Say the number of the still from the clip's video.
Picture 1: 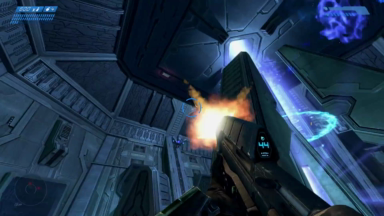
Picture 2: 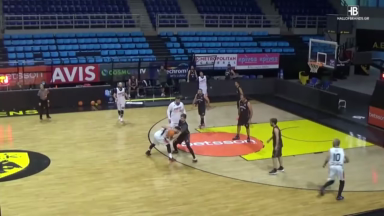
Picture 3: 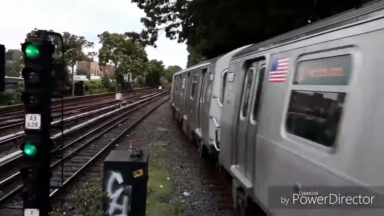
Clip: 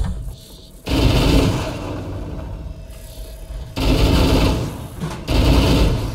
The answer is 1